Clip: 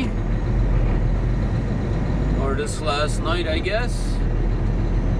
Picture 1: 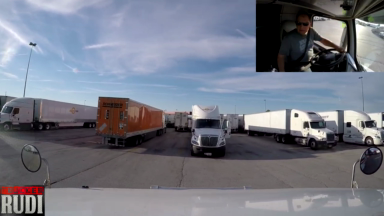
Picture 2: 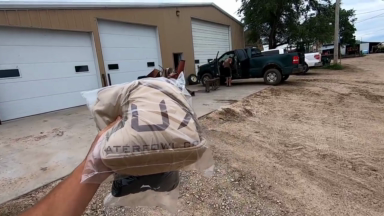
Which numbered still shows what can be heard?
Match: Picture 1